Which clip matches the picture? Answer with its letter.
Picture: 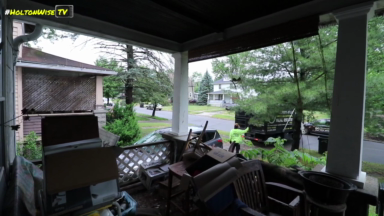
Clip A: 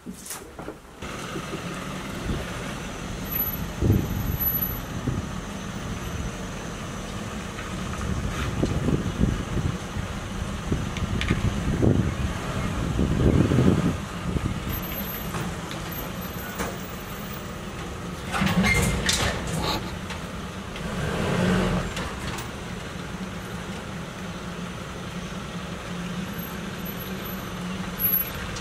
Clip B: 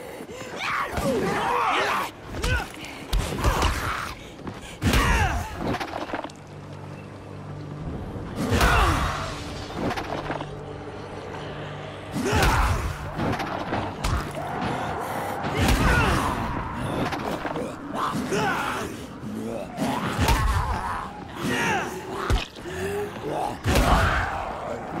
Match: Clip A